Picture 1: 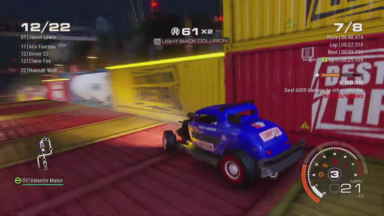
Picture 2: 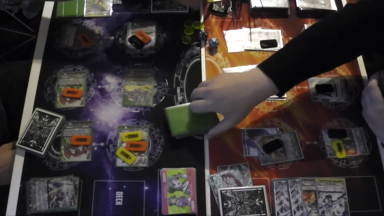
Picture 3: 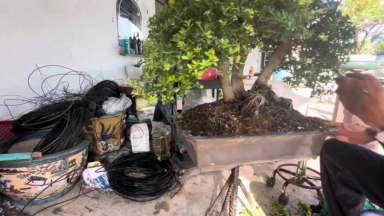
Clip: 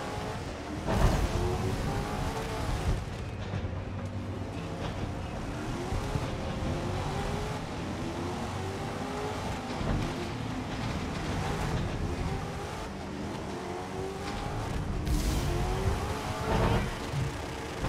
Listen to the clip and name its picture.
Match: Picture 1